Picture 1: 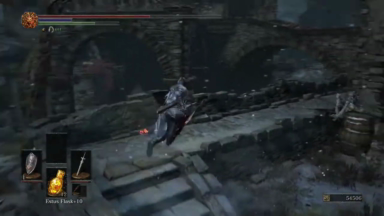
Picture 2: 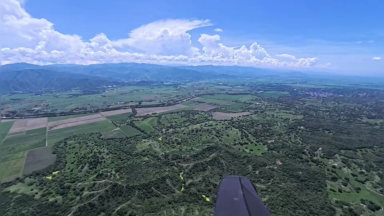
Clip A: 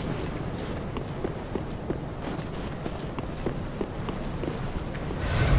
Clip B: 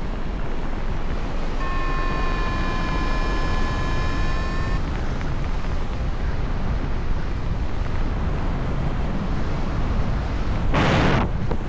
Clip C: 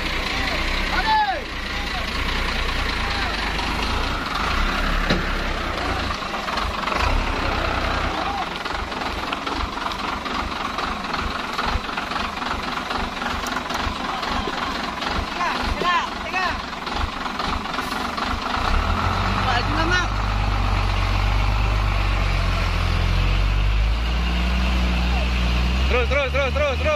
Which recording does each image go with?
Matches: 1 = A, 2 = B